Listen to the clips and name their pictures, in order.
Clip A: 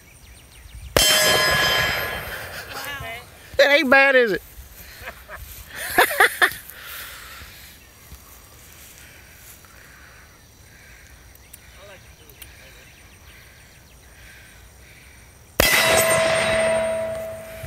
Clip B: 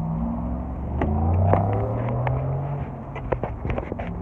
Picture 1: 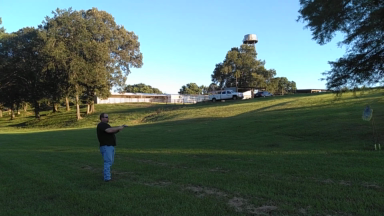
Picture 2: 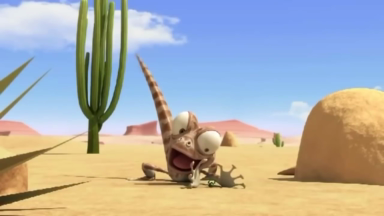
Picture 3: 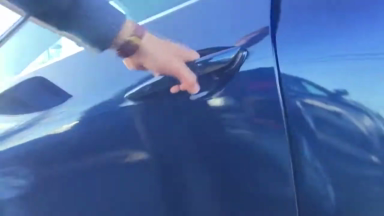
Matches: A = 1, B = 3